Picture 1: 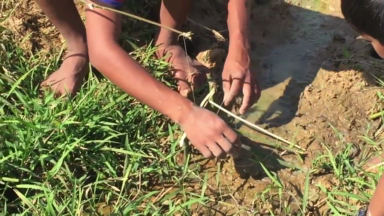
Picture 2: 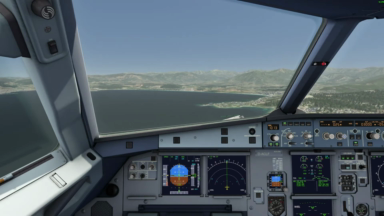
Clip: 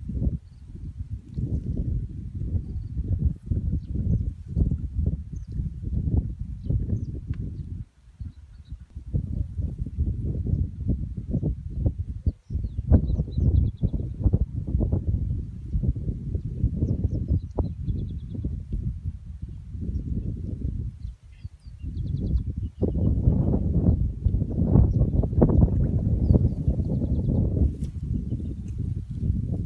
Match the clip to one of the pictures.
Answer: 1